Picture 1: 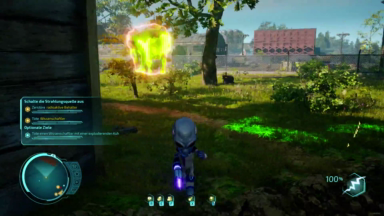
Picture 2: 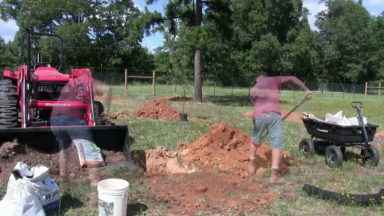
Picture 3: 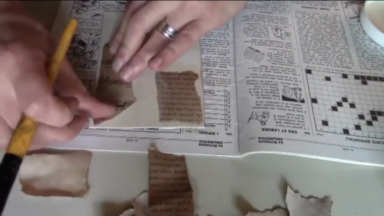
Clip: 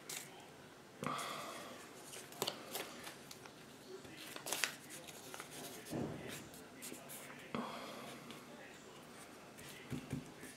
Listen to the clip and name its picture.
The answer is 3